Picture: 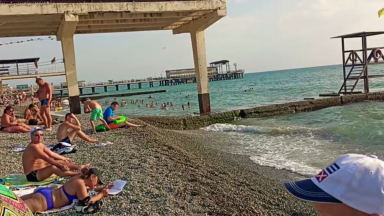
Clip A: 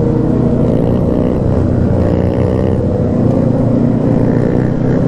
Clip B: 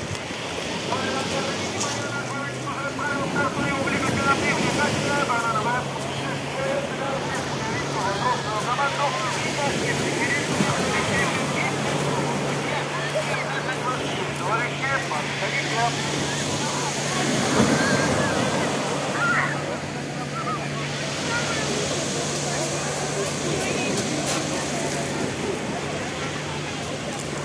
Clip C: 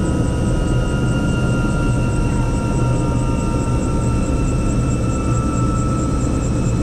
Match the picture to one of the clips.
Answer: B